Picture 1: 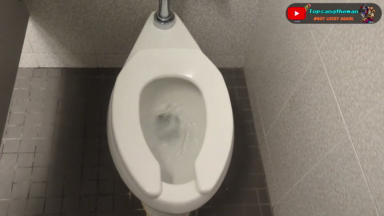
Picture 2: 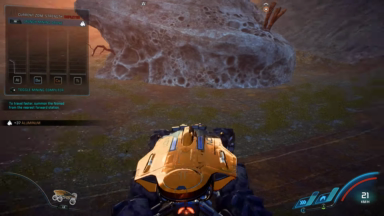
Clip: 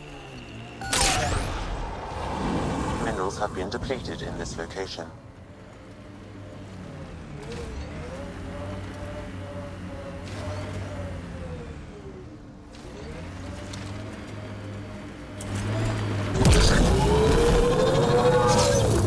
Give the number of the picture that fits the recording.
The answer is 2